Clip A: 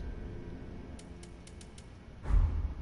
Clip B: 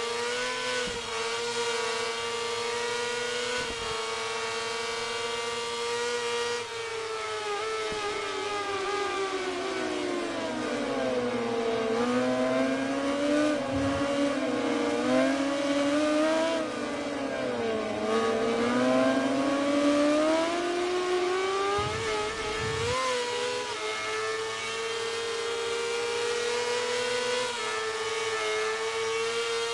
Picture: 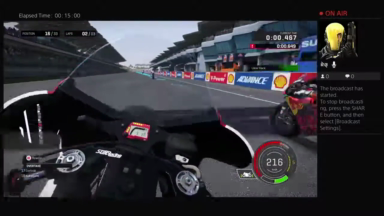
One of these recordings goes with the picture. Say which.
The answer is B